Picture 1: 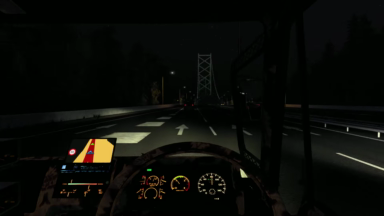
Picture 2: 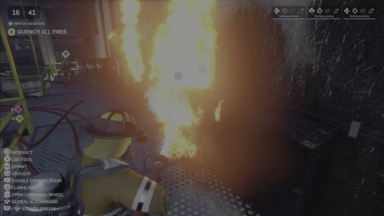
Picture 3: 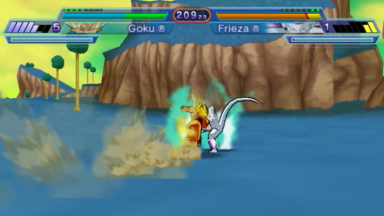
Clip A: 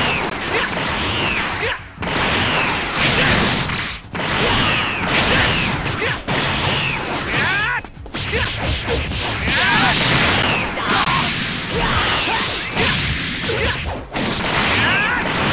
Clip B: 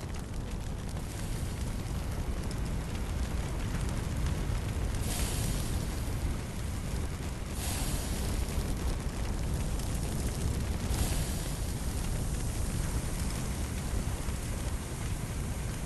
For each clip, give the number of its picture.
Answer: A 3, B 2